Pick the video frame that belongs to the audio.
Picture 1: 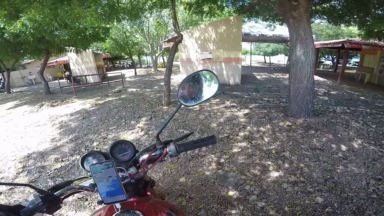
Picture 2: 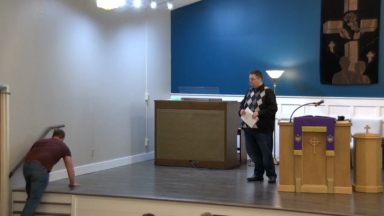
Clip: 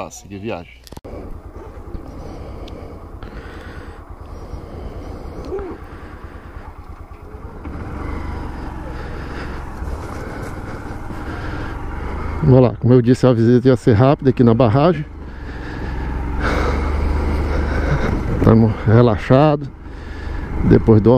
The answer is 1